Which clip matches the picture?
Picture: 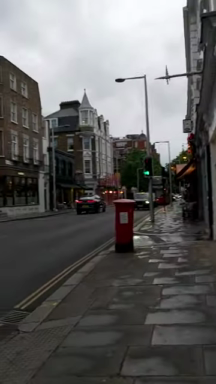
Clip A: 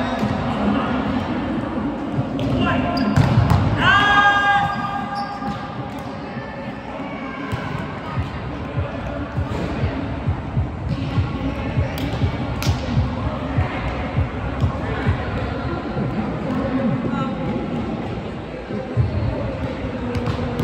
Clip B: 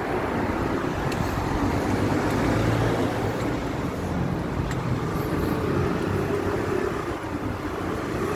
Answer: B